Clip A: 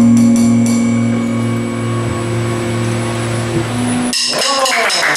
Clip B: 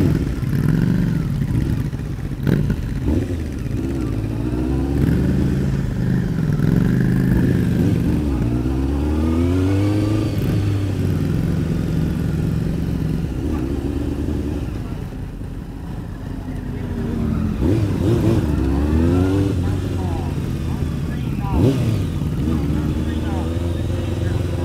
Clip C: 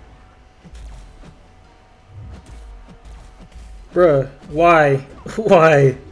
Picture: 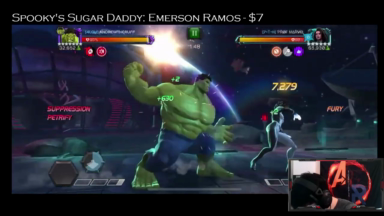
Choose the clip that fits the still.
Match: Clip C